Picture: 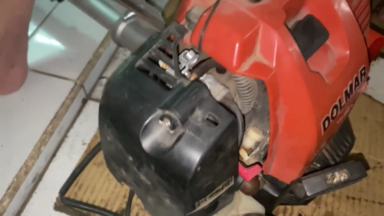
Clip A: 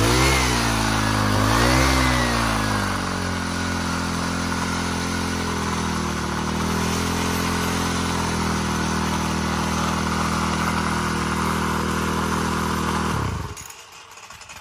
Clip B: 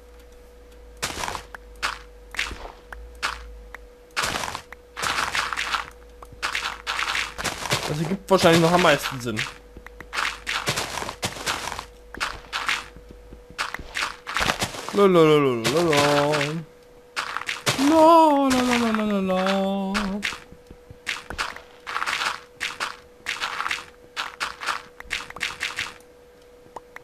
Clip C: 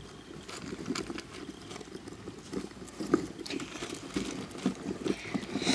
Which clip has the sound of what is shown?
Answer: A